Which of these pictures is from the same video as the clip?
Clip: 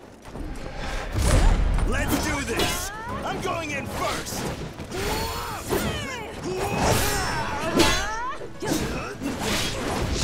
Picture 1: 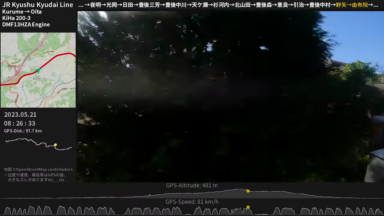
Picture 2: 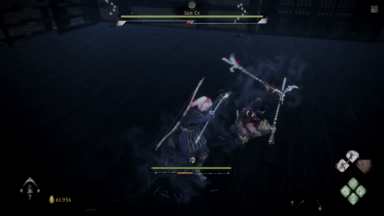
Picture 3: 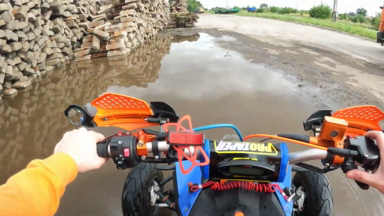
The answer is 2